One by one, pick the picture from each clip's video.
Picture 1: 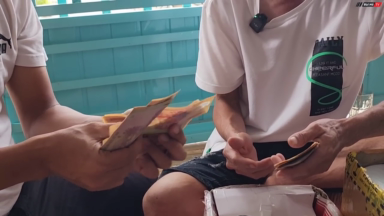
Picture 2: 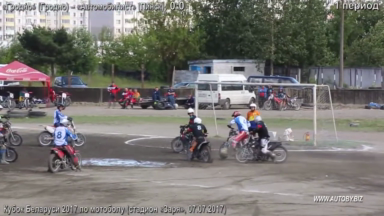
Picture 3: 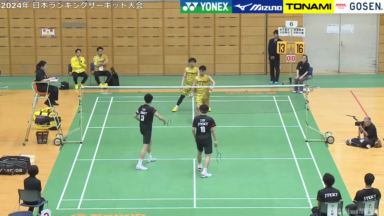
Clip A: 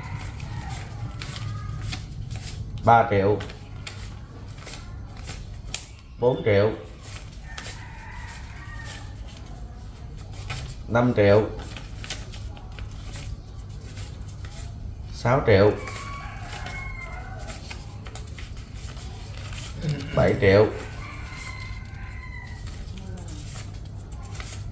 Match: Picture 1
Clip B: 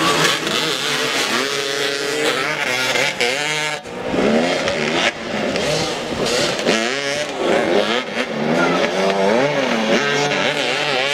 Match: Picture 2